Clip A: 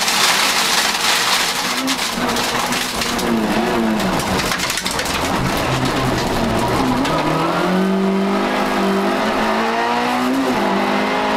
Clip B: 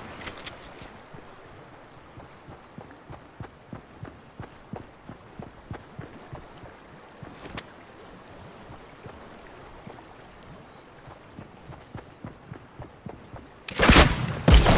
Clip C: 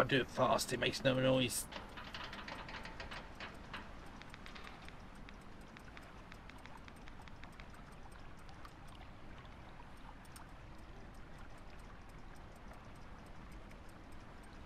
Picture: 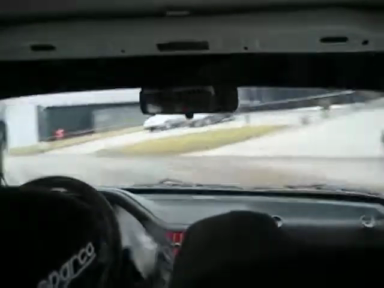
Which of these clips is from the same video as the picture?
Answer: A